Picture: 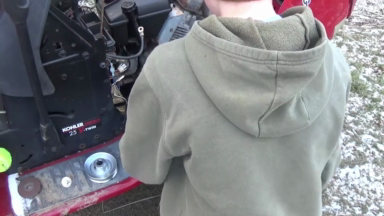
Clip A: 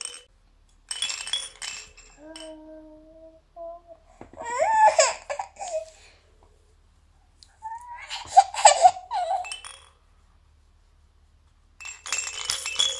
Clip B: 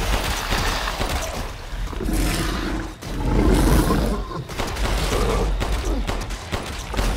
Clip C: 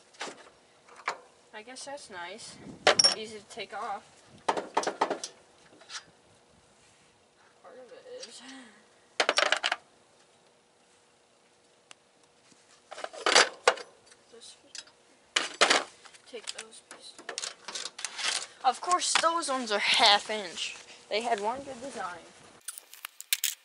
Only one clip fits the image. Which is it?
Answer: C